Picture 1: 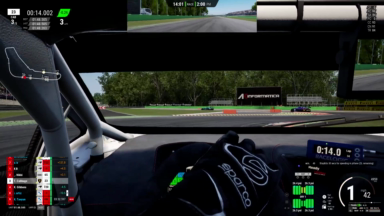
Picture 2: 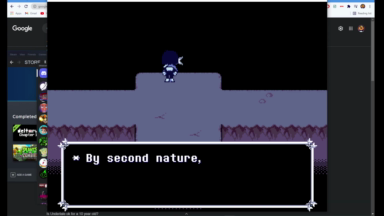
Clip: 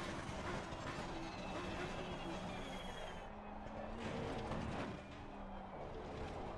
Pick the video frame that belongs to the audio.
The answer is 1